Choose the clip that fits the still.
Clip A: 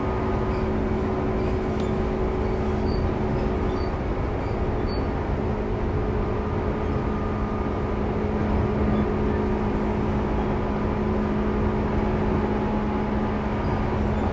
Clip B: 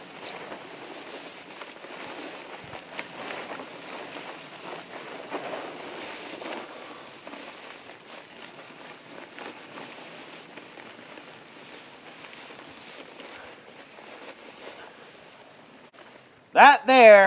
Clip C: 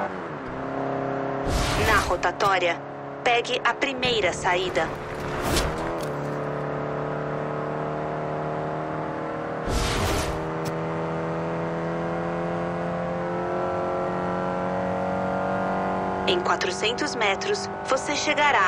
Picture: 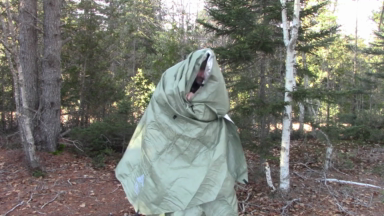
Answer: B